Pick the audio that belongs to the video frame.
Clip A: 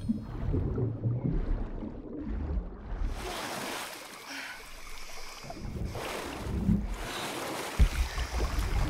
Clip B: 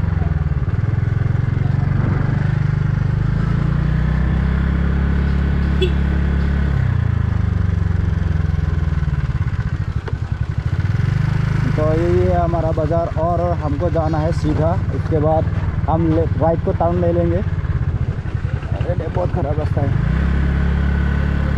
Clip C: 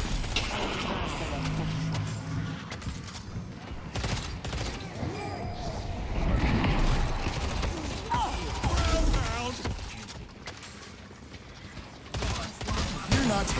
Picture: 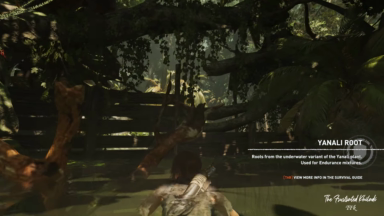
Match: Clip A